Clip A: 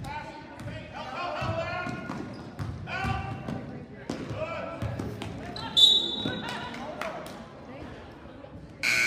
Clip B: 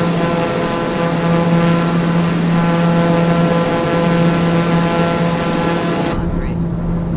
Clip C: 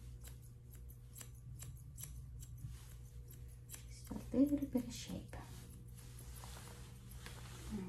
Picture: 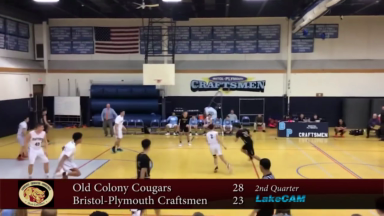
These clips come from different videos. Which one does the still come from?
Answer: A